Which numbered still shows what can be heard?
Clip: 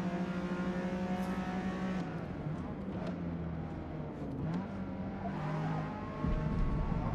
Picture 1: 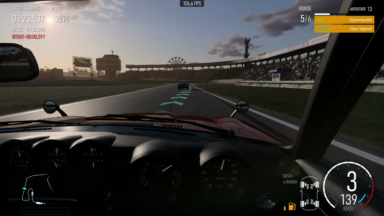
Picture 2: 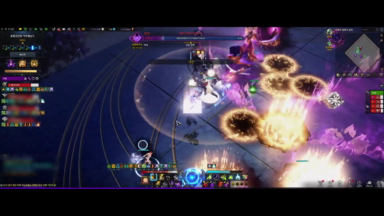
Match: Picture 1